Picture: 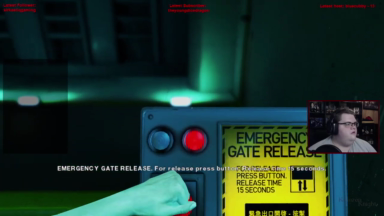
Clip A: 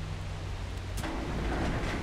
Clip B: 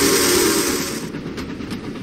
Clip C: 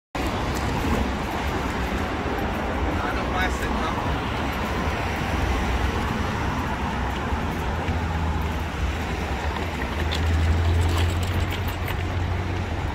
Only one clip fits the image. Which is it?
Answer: A